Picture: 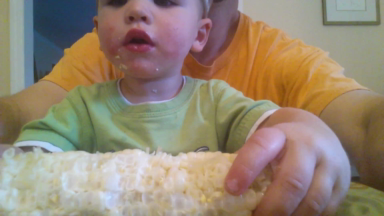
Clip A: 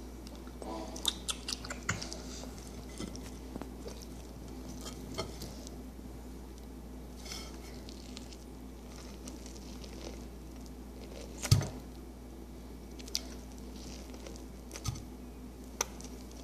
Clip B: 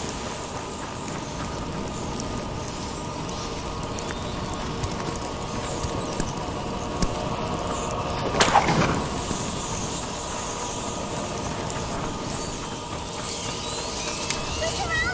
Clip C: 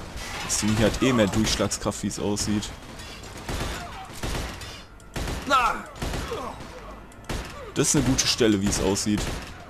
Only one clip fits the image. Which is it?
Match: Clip A